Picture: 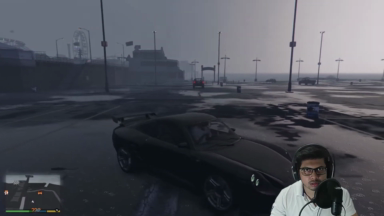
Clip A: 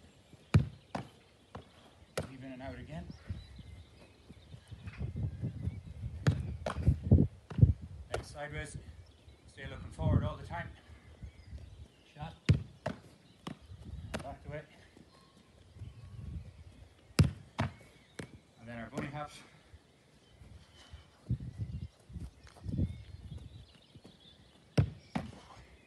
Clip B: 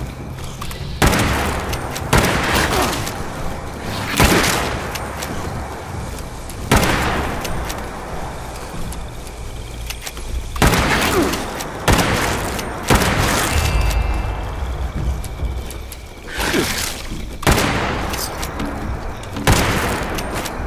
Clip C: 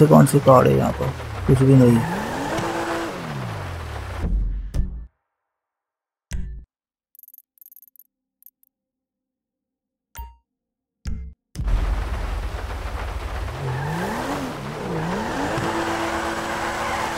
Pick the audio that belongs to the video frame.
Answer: C